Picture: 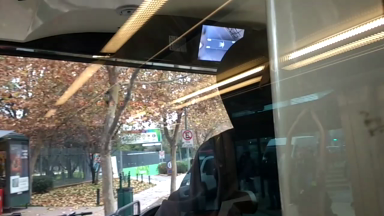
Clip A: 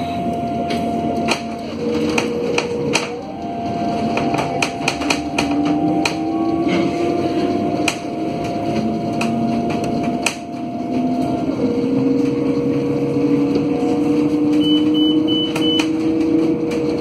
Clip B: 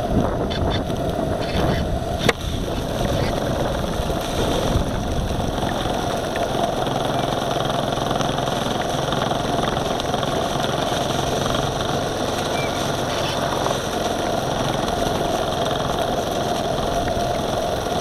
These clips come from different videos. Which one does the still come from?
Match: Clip A